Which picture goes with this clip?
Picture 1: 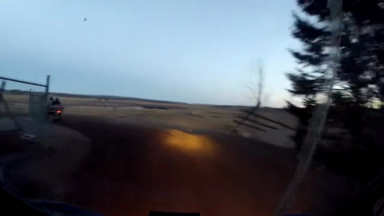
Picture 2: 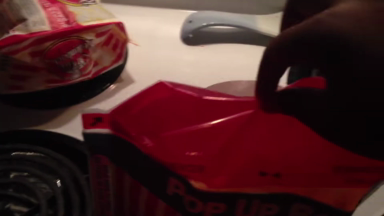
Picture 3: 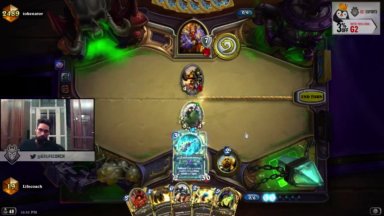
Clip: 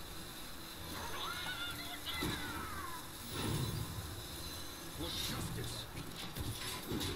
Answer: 3